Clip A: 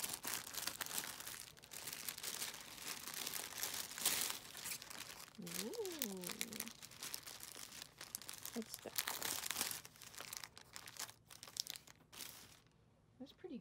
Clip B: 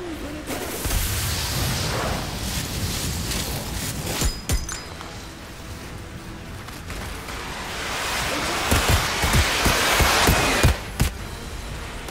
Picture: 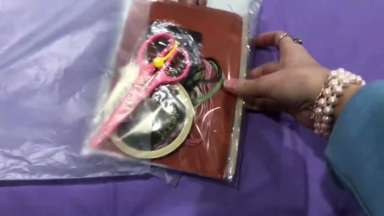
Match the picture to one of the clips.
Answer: A